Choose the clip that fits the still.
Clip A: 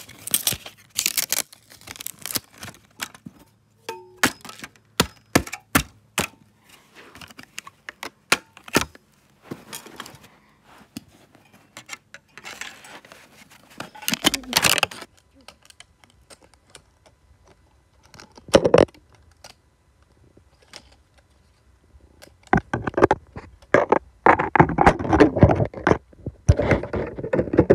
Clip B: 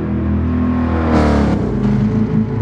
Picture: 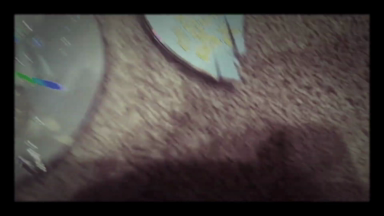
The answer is A